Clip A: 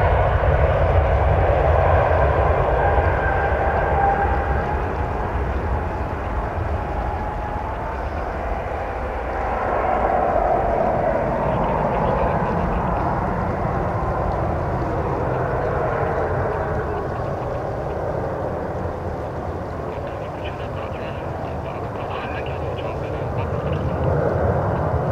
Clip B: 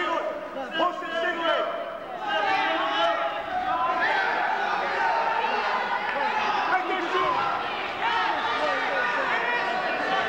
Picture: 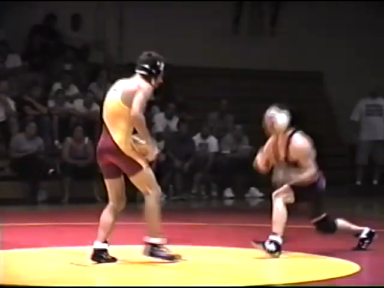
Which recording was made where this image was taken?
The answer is B